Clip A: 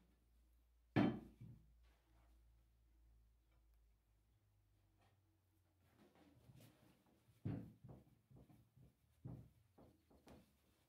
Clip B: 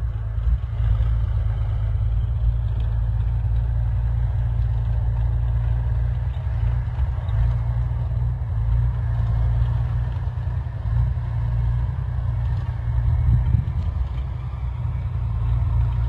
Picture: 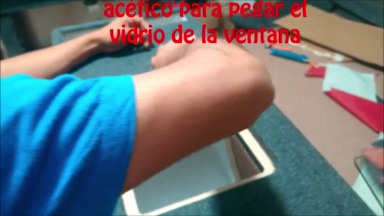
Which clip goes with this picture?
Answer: A